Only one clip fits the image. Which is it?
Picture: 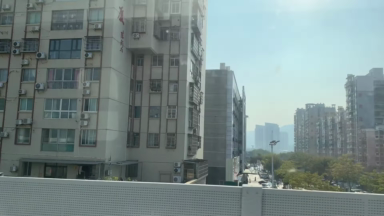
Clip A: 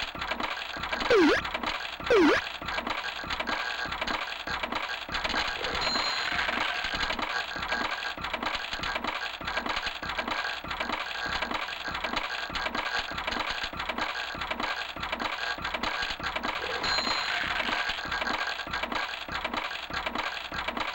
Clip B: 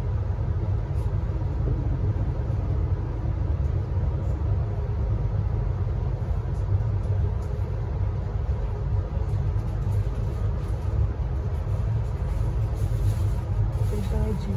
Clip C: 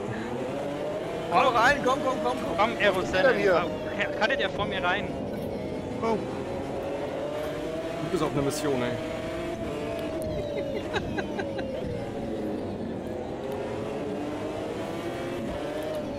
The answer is B